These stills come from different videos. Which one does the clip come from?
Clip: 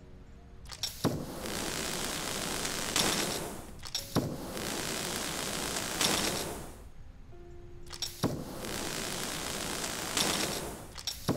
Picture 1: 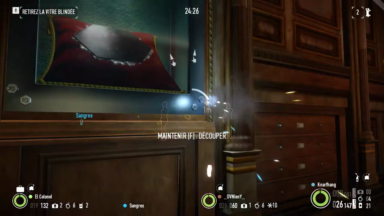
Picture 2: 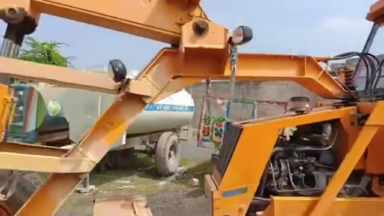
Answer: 1